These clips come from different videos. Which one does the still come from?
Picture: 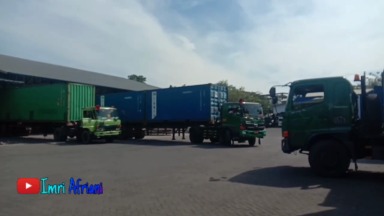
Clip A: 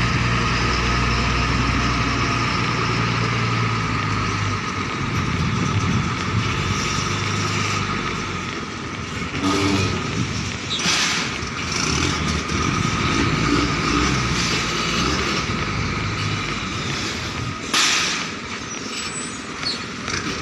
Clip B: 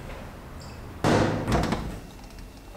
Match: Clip A